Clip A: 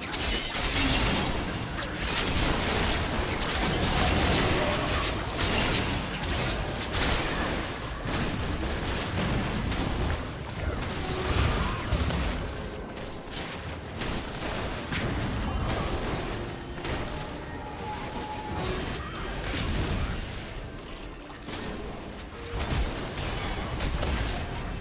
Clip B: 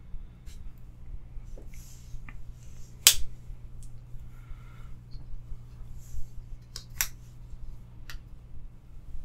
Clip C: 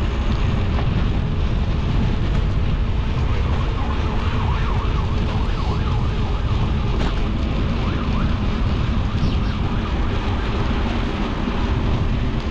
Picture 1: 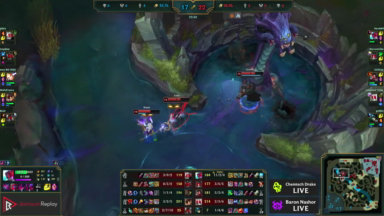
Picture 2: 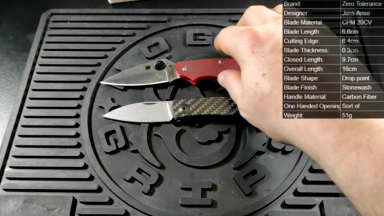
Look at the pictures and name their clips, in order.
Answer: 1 A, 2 B